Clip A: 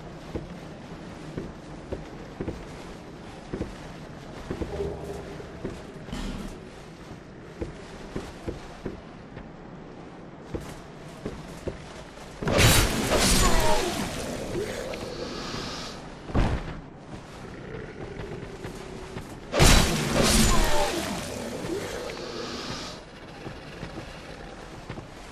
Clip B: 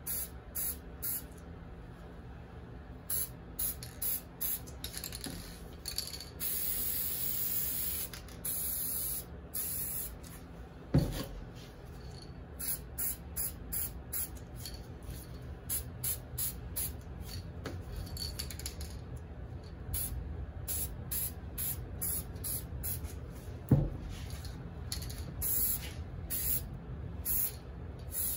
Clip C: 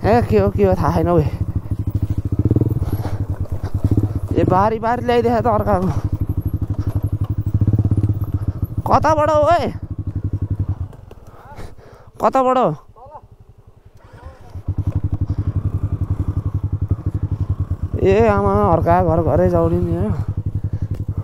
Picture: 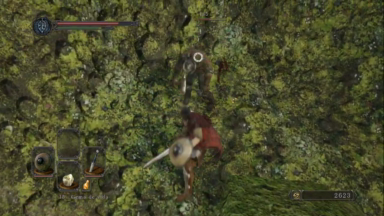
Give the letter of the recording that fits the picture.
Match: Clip A